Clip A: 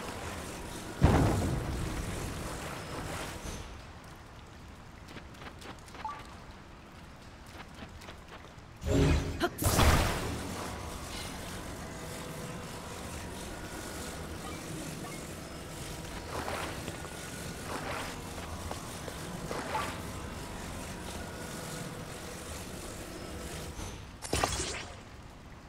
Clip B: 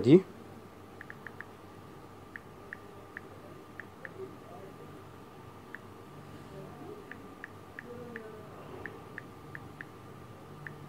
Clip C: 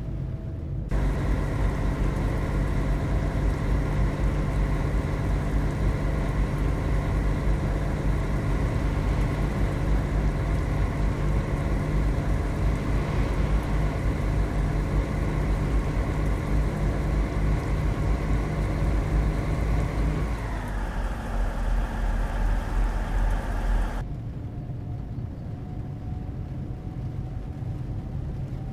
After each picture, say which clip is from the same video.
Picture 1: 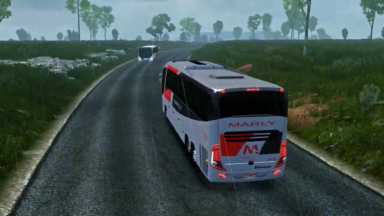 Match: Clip C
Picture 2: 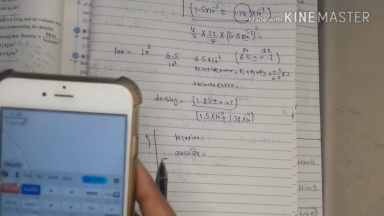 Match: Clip B